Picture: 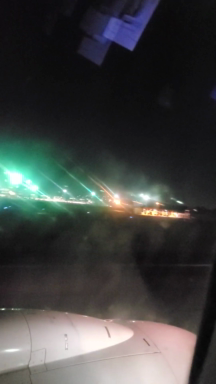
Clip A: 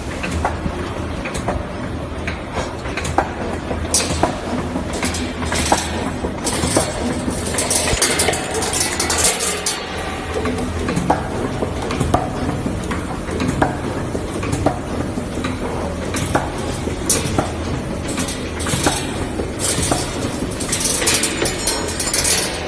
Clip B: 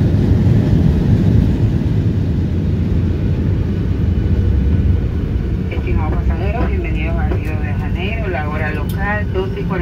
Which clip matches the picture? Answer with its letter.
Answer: B